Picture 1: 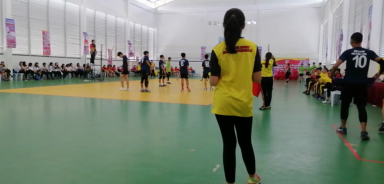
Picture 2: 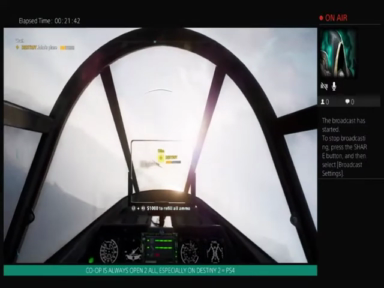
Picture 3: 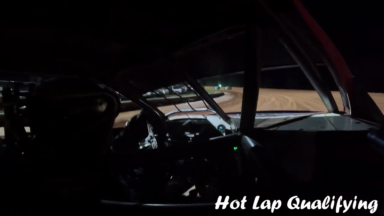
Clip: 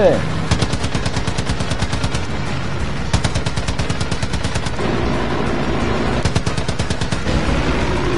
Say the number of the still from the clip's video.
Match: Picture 2